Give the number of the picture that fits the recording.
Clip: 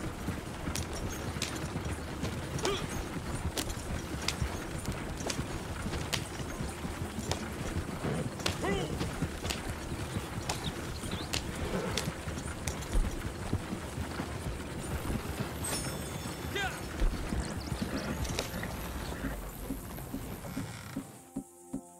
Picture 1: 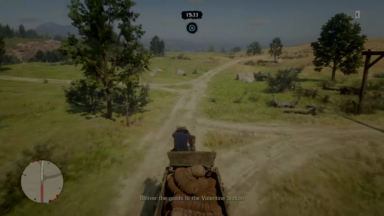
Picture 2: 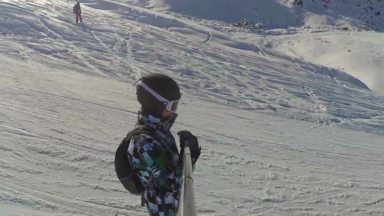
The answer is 1